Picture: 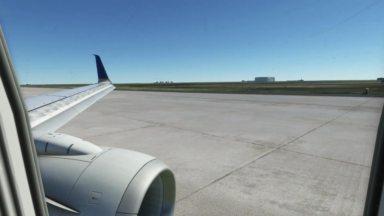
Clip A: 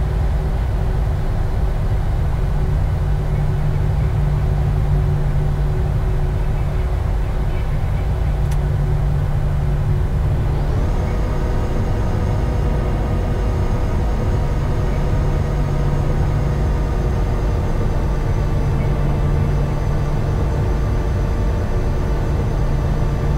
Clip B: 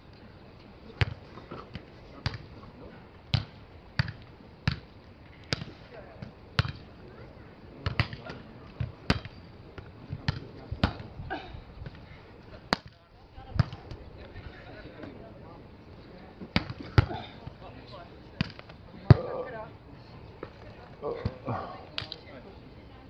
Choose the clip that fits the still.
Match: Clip A